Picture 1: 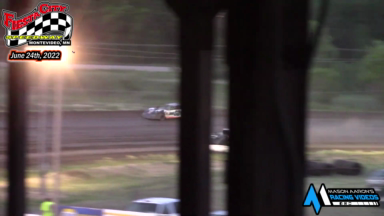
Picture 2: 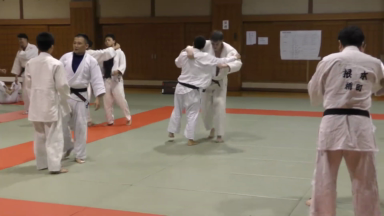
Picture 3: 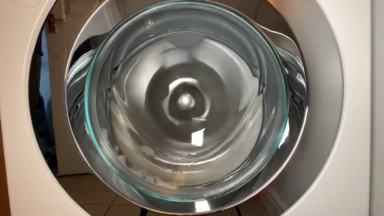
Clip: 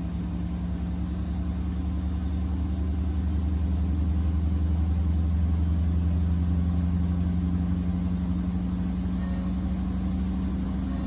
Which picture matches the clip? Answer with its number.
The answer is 3